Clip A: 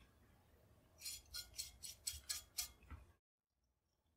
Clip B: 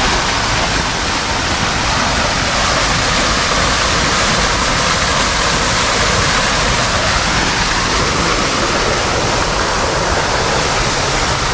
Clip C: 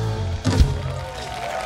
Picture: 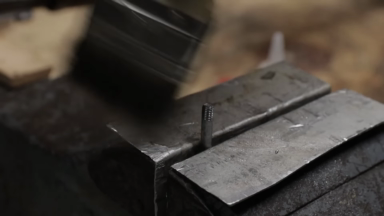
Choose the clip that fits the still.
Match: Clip A